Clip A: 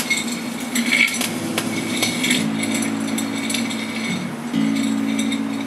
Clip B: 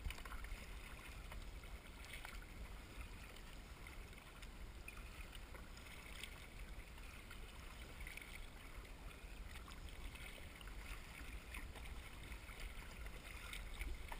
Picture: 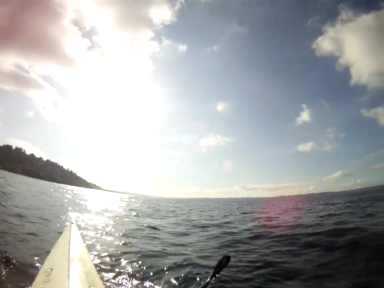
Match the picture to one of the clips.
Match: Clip B